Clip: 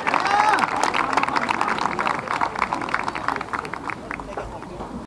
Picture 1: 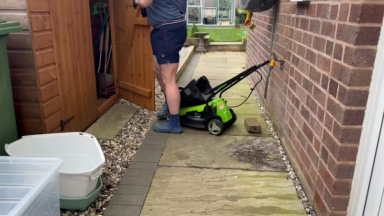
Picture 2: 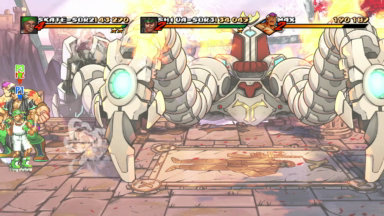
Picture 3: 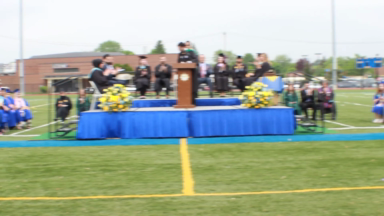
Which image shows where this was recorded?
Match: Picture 3